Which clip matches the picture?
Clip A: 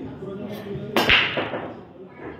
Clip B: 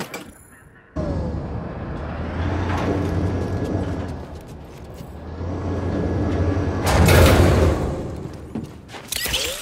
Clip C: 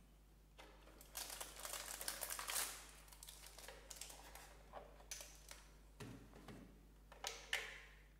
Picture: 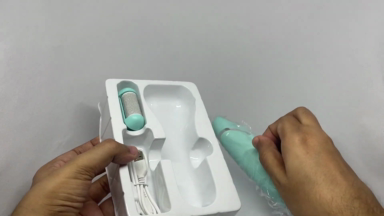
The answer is C